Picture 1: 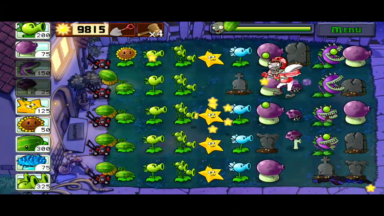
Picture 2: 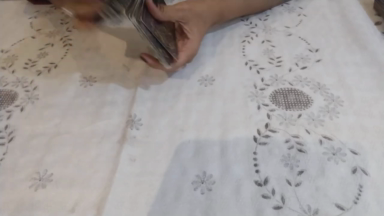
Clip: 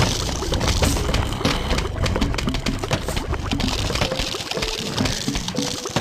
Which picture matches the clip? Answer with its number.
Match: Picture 1